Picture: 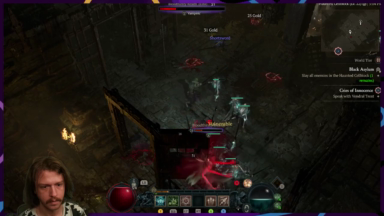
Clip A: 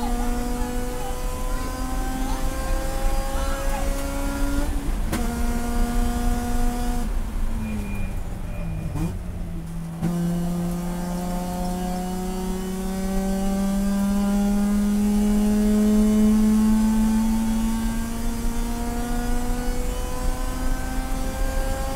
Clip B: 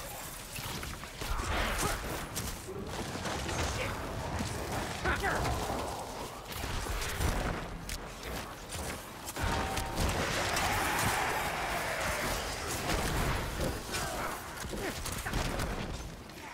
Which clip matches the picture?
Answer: B